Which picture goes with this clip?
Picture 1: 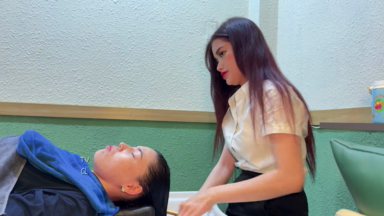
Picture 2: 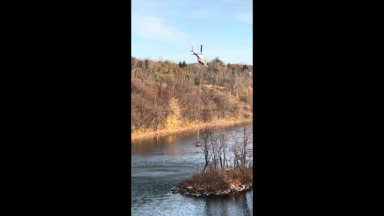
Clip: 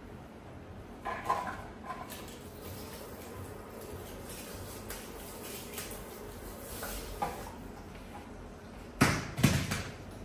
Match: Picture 1